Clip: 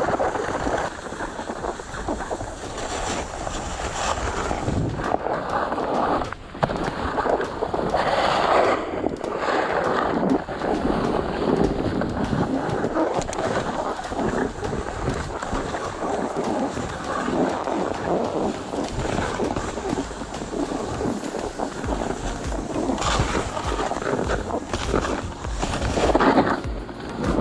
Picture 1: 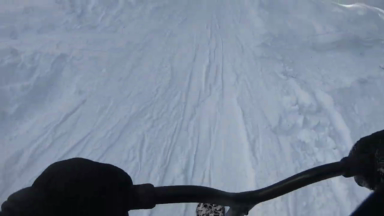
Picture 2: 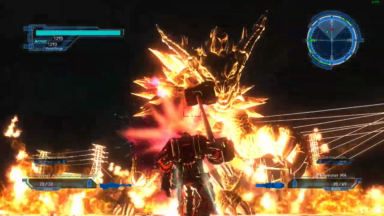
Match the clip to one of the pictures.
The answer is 1